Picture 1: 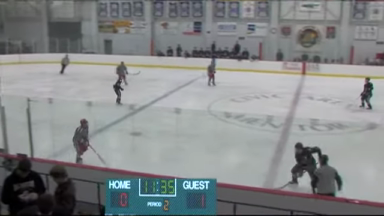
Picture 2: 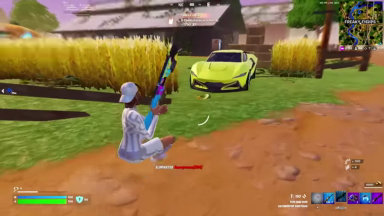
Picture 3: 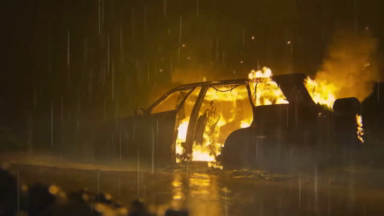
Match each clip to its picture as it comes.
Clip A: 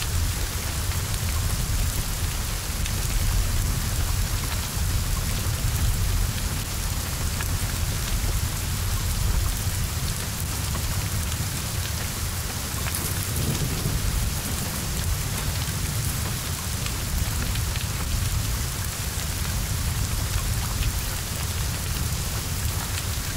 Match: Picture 3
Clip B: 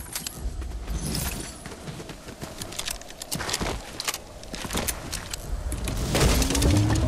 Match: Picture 2